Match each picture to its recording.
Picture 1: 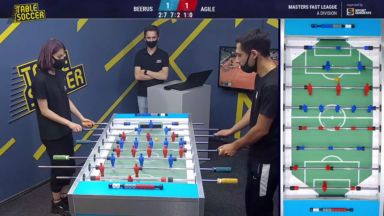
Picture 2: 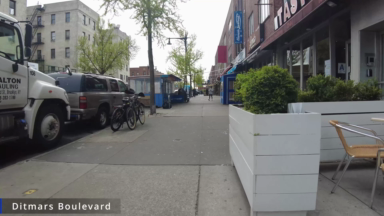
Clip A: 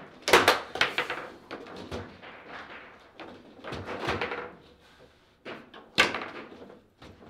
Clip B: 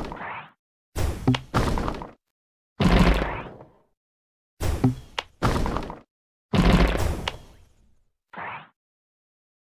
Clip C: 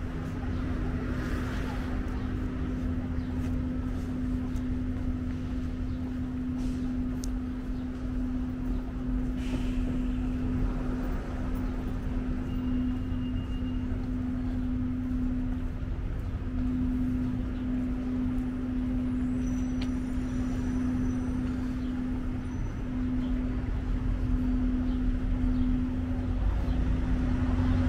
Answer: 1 A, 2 C